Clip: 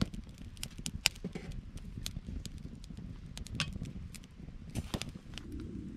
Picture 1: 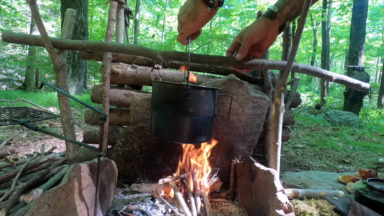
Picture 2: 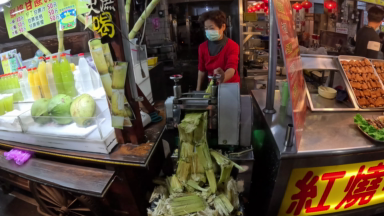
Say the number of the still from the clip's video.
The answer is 1